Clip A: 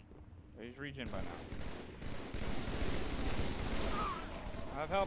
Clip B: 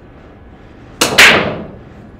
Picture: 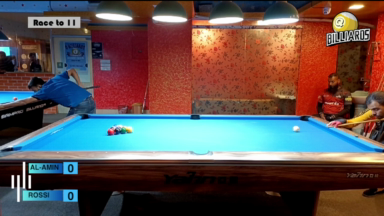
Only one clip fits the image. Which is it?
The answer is B